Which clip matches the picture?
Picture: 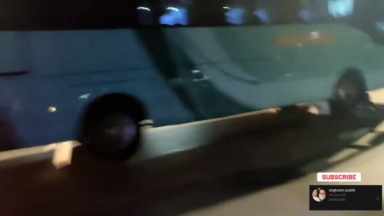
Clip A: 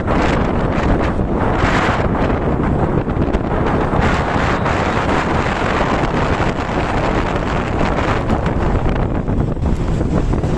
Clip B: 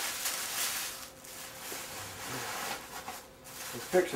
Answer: A